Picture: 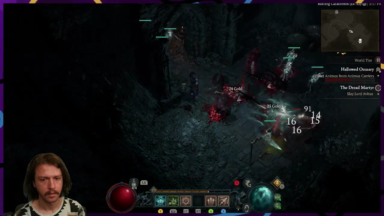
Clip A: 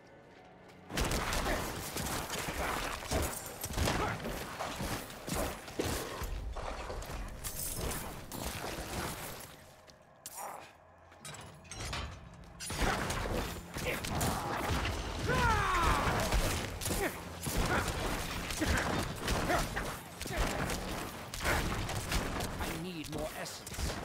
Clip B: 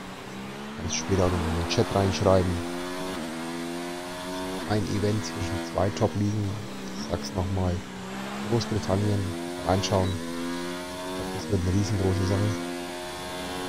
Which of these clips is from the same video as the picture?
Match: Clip A